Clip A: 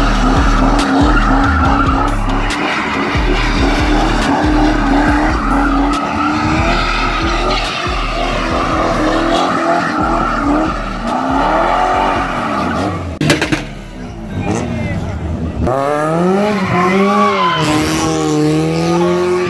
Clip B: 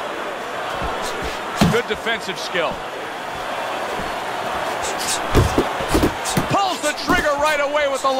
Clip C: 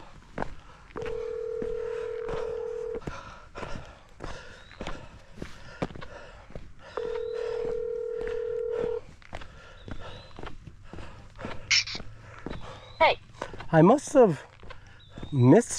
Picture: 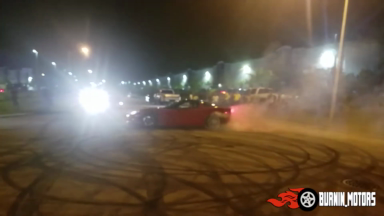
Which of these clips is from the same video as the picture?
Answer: A